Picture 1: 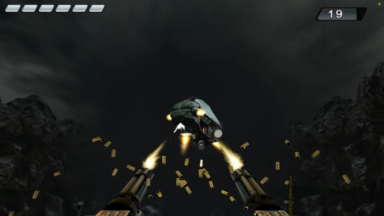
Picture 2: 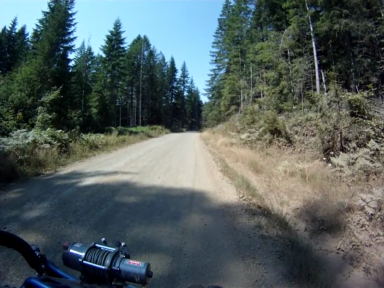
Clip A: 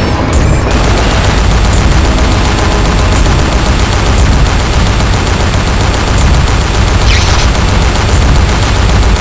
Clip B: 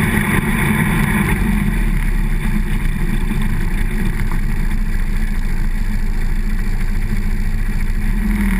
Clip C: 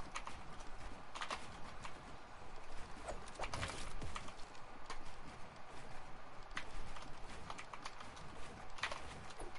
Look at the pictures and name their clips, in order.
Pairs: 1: A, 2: B